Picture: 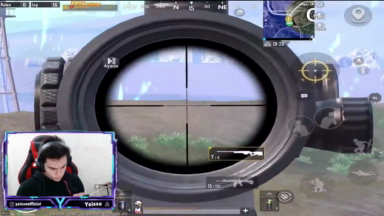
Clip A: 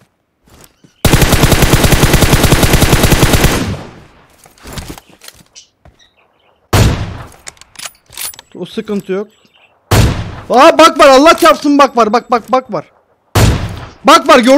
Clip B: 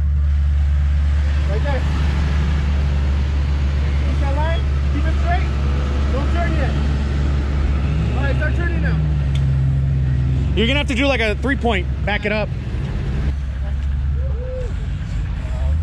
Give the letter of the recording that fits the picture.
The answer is A